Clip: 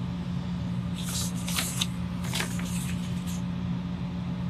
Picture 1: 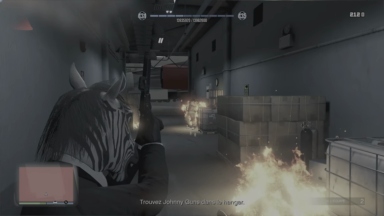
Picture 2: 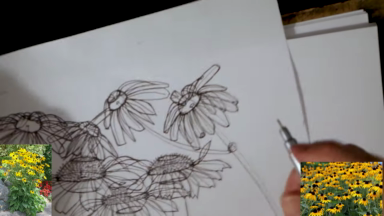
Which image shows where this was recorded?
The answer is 2